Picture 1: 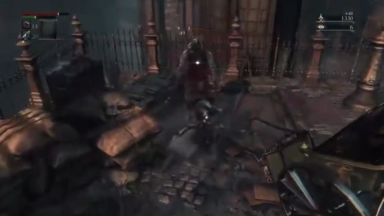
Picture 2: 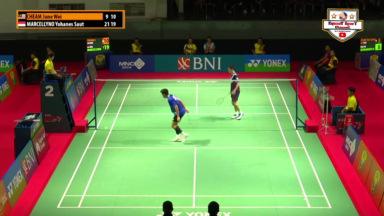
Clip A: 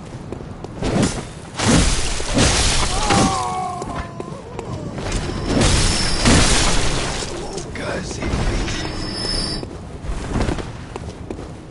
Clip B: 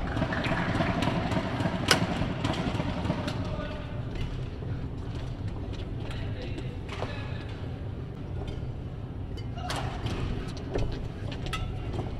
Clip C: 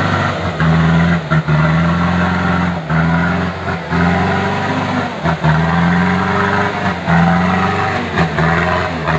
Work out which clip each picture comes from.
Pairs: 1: A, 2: B